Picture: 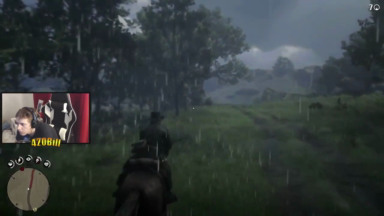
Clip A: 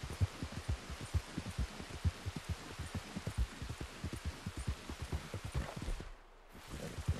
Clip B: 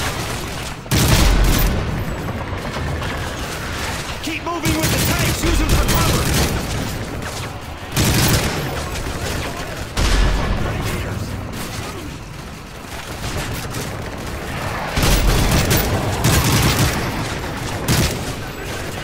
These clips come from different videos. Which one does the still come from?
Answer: A